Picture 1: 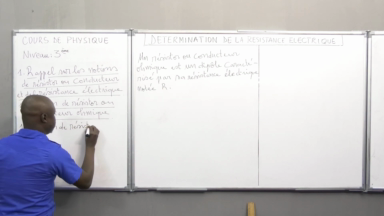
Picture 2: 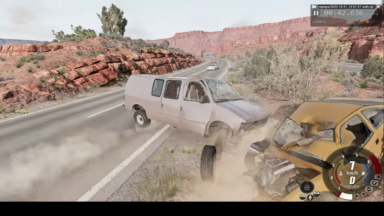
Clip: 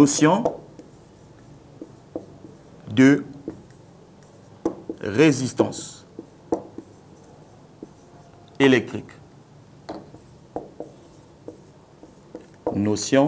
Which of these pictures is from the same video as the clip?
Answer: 1